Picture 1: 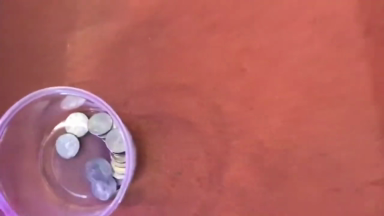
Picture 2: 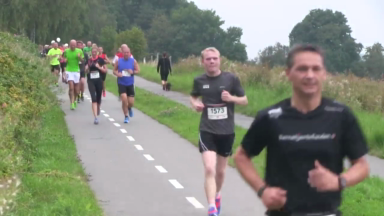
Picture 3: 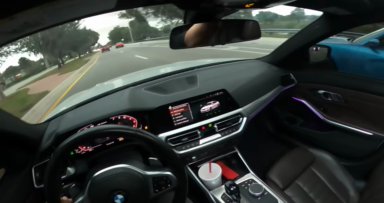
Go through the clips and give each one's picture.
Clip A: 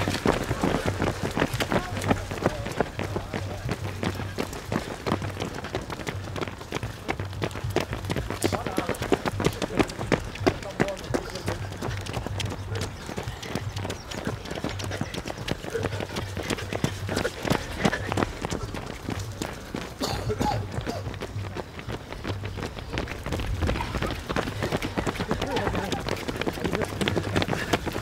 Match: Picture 2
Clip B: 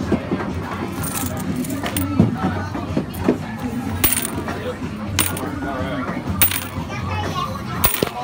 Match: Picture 1